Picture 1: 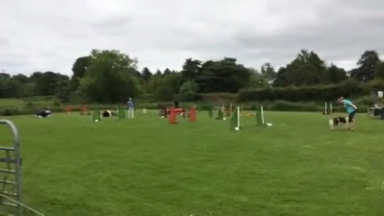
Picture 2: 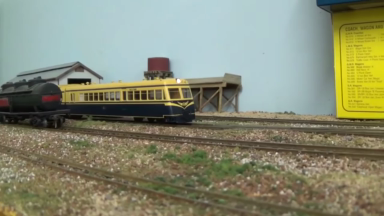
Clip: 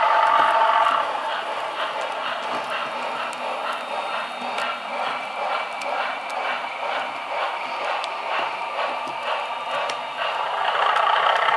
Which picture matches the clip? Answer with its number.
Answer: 2